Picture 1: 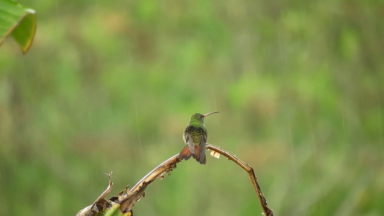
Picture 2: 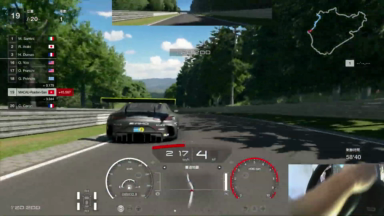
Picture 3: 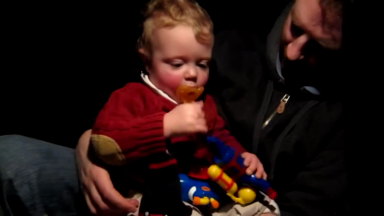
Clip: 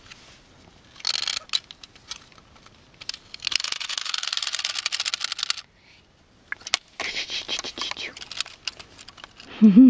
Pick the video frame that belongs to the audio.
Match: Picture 3